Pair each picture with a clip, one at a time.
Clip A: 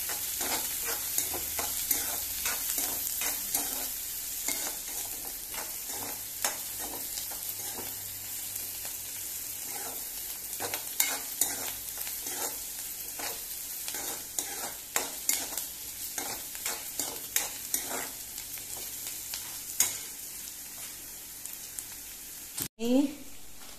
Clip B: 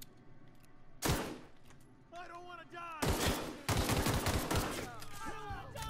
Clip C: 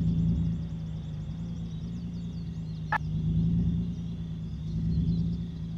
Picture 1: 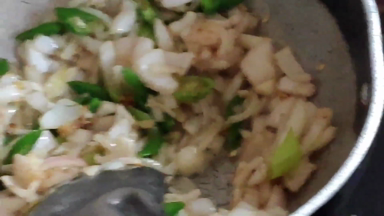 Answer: A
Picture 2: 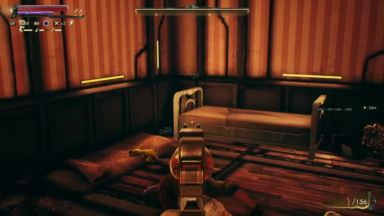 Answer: B